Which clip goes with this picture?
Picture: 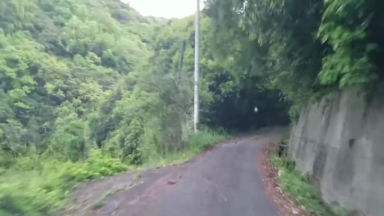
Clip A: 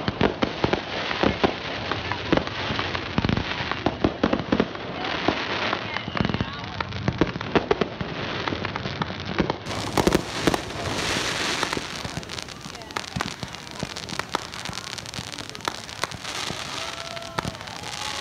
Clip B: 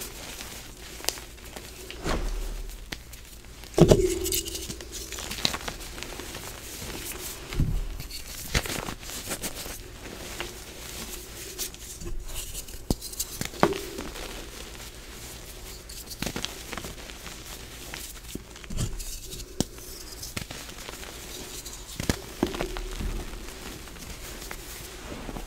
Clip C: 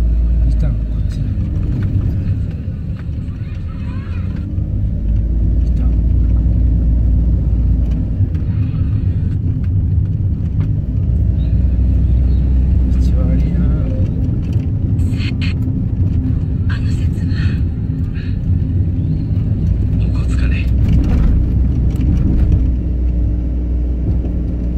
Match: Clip C